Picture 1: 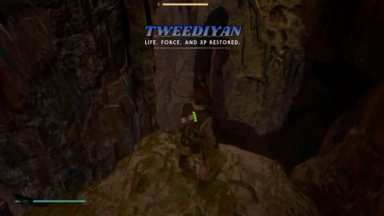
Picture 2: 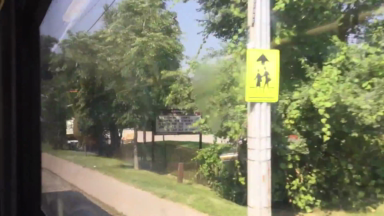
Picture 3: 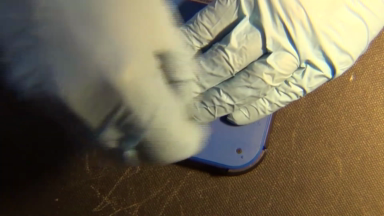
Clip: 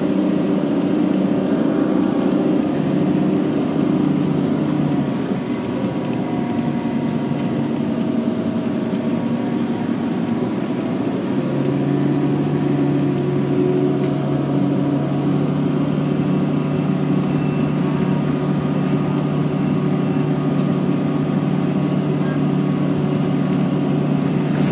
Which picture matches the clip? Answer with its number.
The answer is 2